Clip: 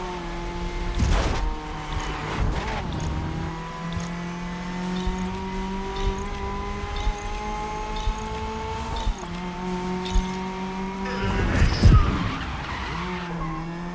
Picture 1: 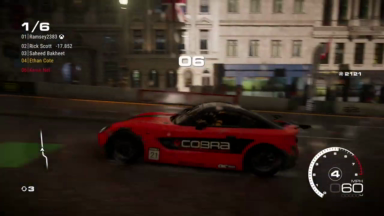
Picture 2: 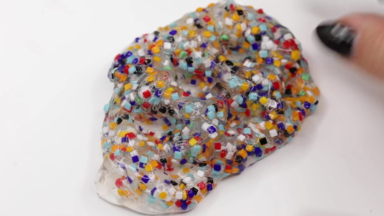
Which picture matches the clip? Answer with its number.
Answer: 1